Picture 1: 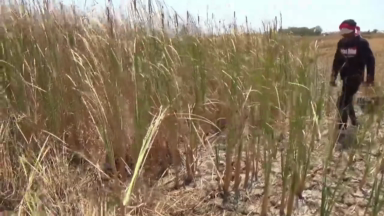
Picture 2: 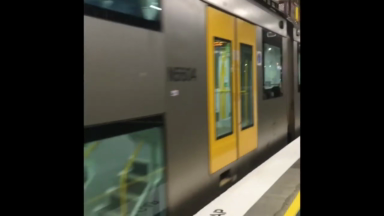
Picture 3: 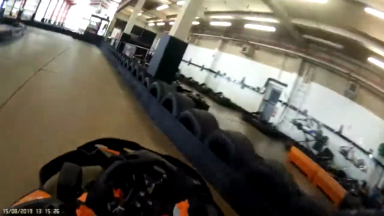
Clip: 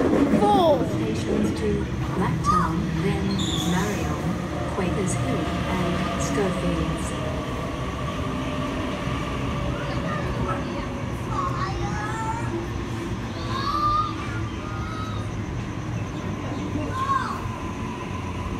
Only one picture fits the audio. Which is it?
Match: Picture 2